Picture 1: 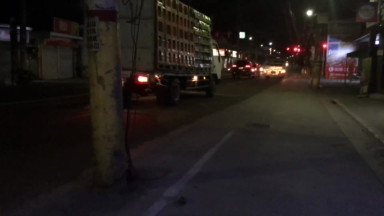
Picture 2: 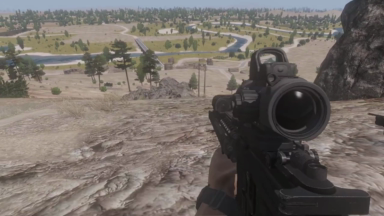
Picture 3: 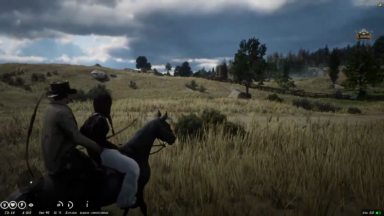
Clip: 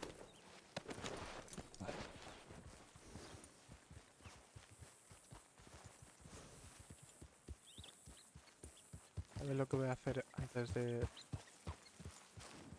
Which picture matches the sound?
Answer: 3